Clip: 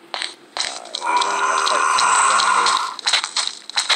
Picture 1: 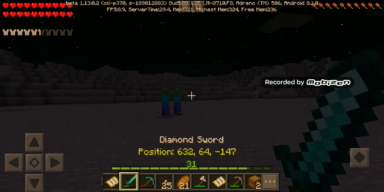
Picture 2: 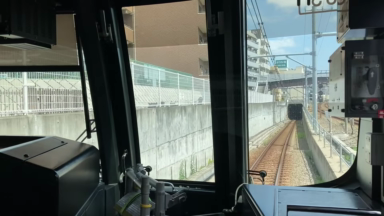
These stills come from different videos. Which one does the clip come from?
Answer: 1